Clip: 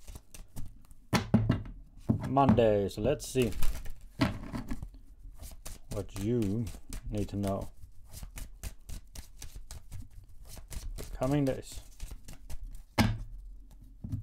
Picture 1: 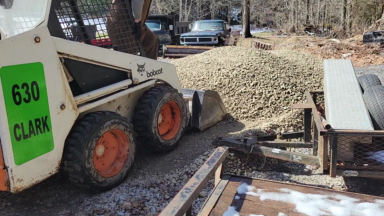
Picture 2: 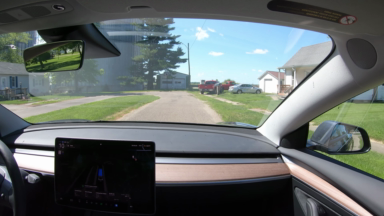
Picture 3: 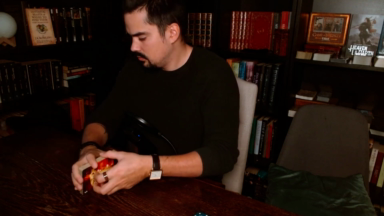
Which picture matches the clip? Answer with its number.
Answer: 3